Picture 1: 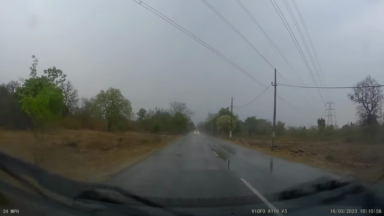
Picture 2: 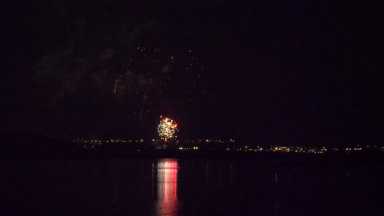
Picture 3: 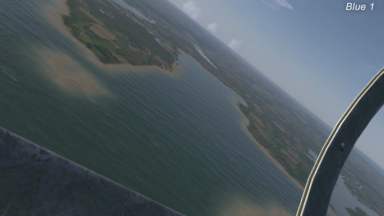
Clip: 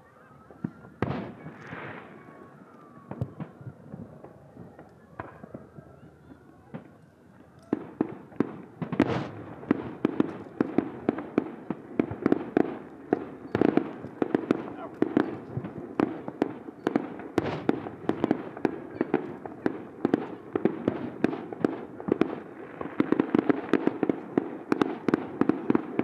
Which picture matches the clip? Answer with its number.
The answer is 2